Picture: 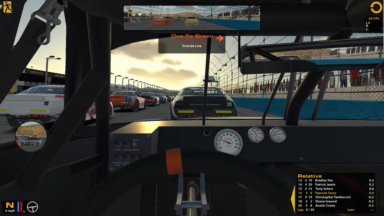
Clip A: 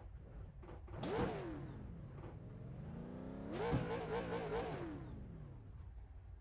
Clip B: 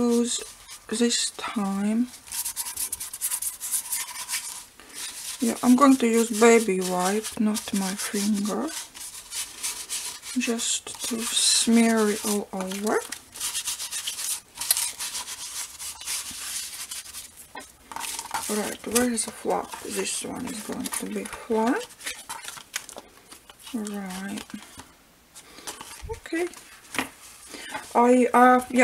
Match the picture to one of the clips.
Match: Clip A